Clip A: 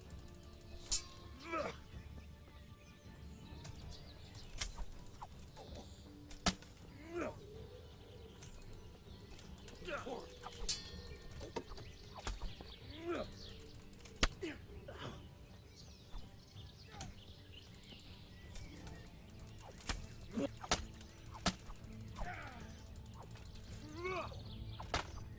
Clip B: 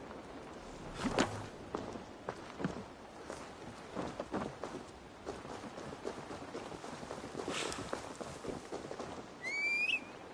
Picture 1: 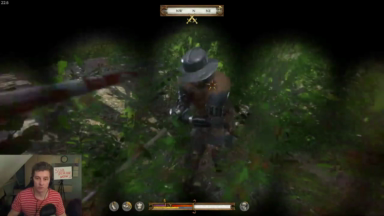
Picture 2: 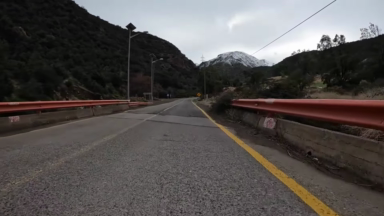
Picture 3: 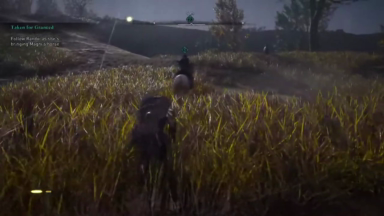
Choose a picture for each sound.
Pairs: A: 1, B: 3